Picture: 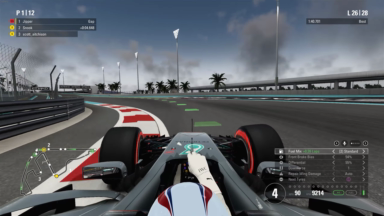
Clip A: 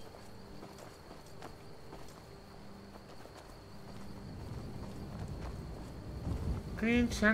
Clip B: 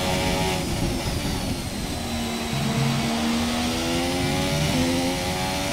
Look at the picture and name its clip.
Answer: B